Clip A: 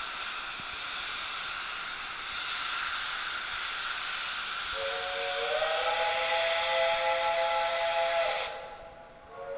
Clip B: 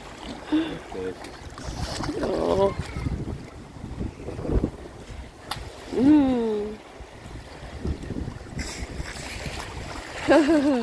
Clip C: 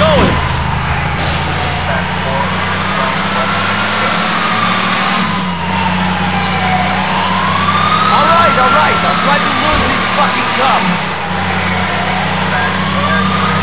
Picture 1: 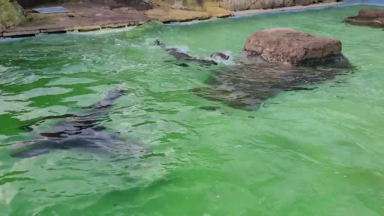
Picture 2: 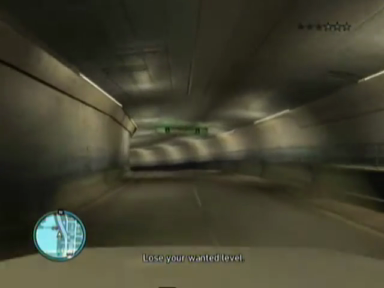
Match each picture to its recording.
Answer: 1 B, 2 C